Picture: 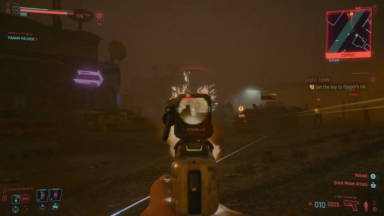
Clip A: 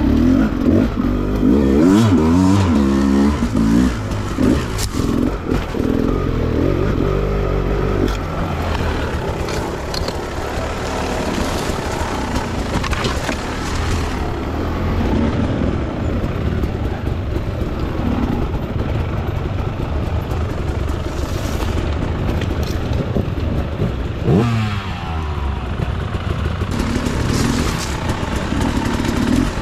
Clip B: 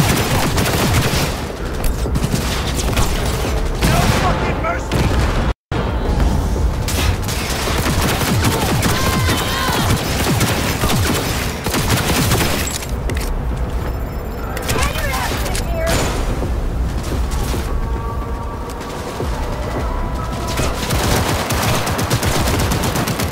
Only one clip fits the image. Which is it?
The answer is B